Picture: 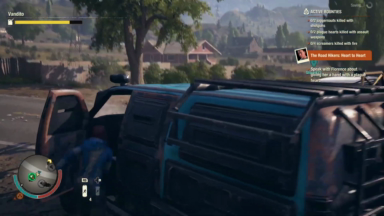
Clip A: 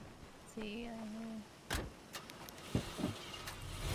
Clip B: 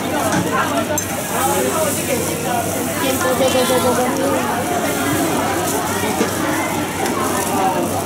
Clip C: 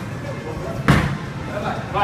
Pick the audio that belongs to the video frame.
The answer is A